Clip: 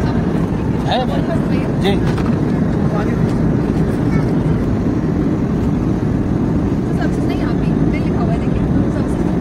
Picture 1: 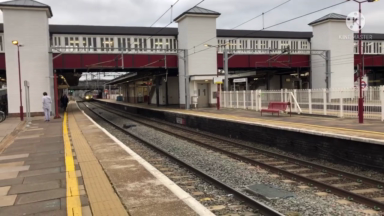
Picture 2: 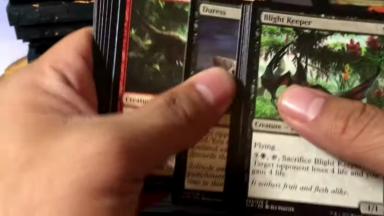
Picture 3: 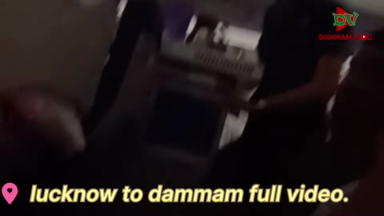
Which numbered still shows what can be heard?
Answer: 3